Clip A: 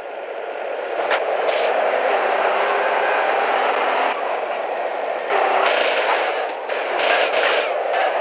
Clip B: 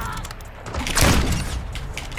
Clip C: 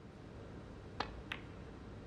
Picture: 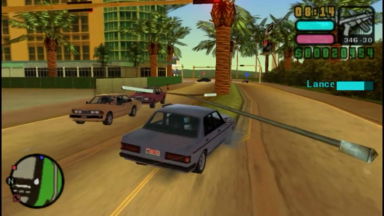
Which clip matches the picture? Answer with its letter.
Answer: A